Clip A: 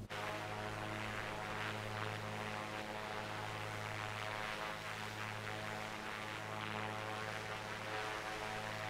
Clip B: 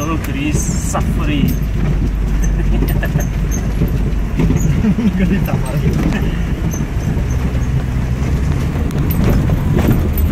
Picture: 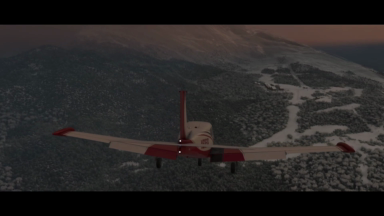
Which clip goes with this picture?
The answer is A